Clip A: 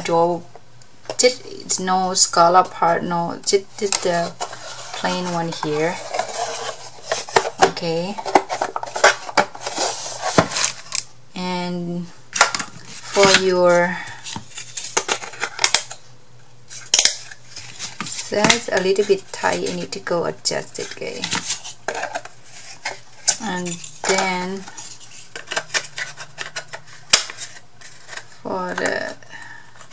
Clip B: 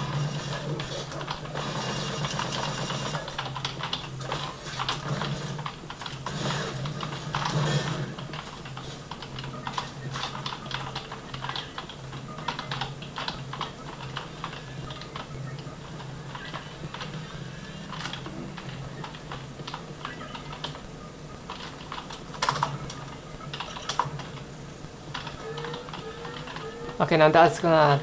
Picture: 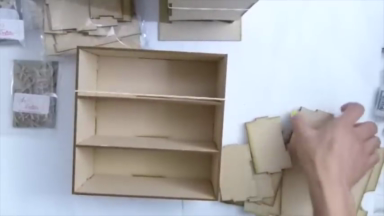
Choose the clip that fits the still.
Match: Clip A